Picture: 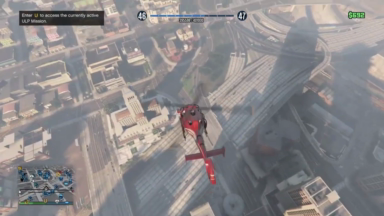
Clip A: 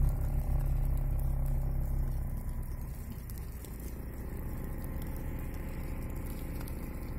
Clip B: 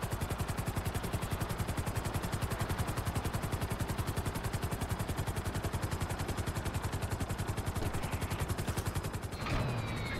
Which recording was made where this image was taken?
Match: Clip B